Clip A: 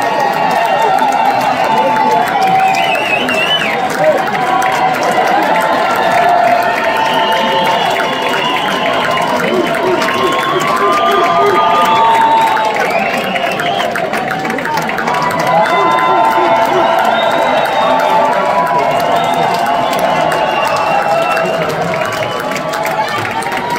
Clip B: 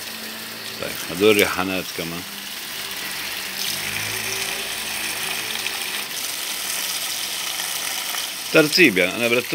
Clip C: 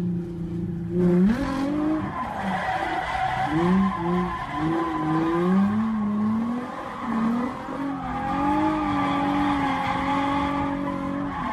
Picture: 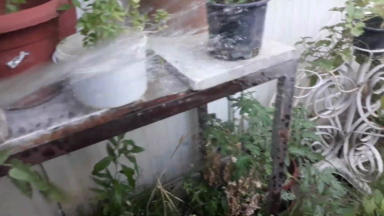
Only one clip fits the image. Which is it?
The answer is B